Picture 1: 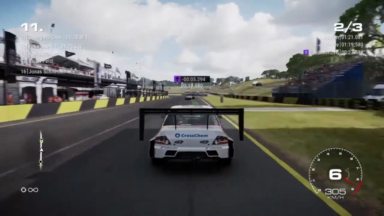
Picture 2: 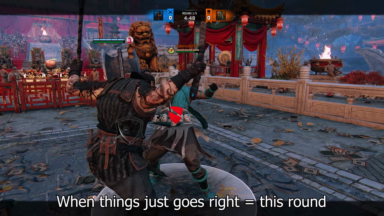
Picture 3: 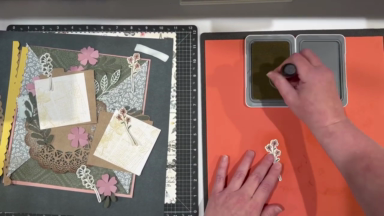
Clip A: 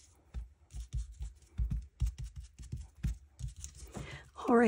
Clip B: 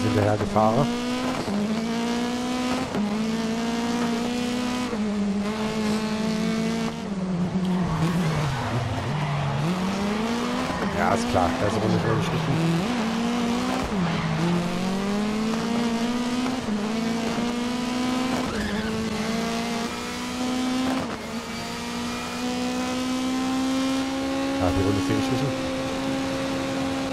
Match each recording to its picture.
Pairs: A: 3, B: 1